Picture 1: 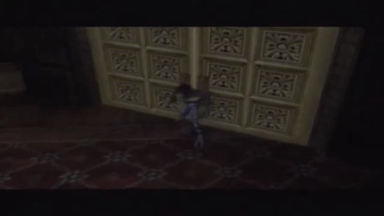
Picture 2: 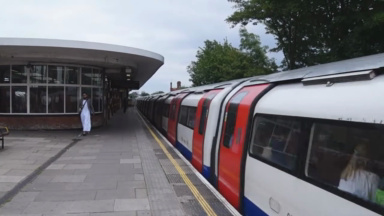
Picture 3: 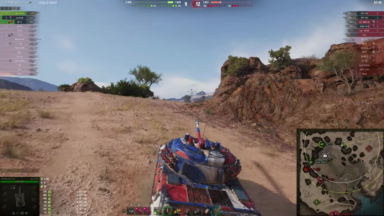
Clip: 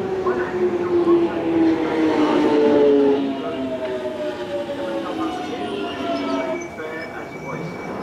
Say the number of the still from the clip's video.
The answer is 2